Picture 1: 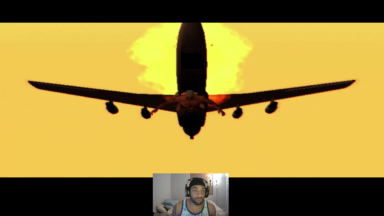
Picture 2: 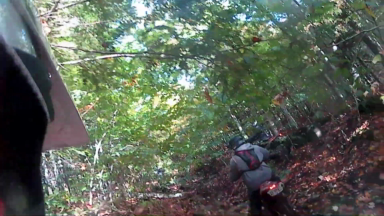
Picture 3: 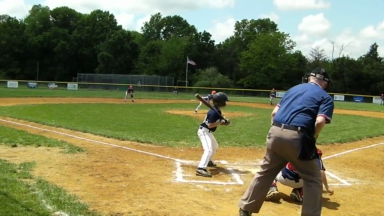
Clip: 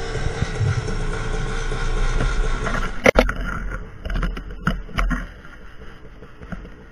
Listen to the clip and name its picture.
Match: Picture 2